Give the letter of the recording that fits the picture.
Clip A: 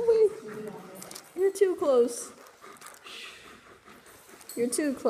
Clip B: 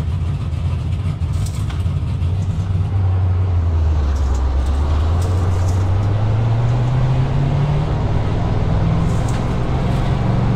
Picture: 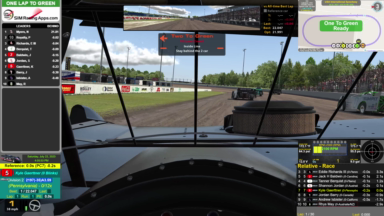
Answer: B